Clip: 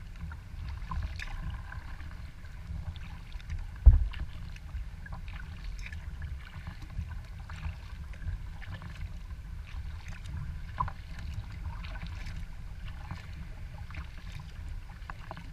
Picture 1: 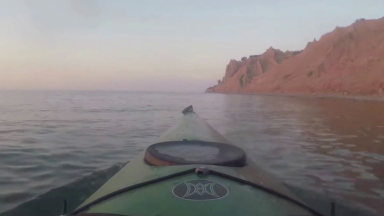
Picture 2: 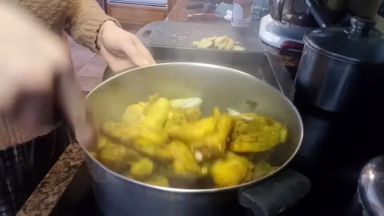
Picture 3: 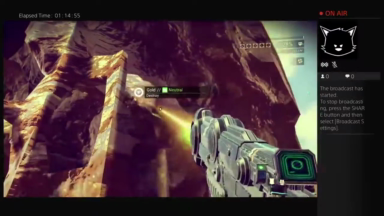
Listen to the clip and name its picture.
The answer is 1